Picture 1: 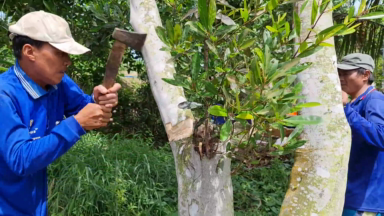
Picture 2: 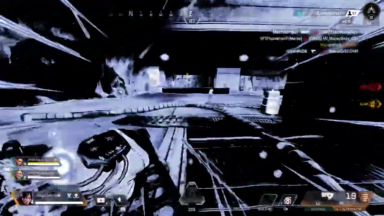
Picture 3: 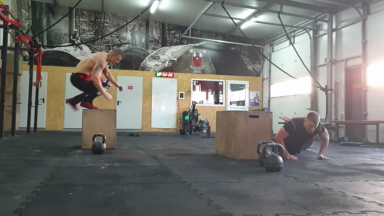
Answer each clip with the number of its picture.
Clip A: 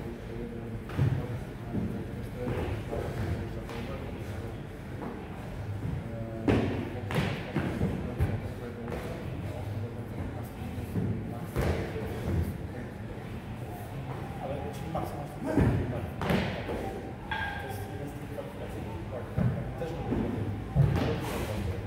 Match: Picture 3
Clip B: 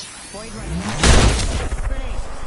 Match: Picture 2